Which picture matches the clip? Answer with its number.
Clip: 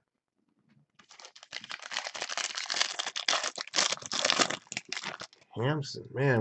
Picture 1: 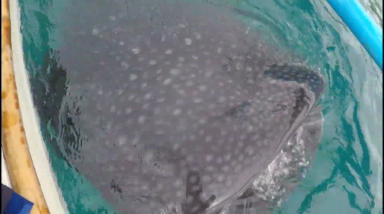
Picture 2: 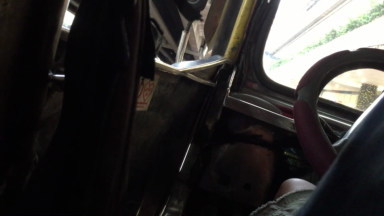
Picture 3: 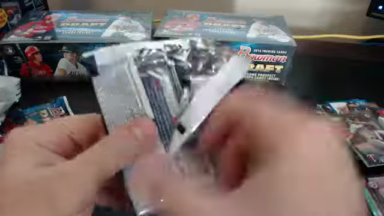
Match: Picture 3